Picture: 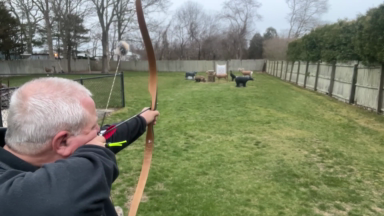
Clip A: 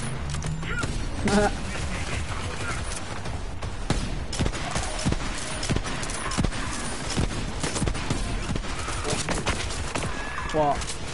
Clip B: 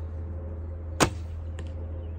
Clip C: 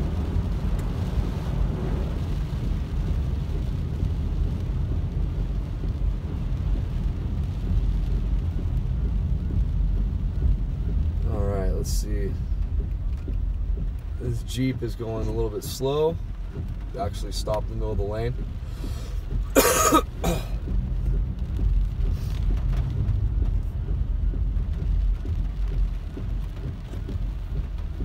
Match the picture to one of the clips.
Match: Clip B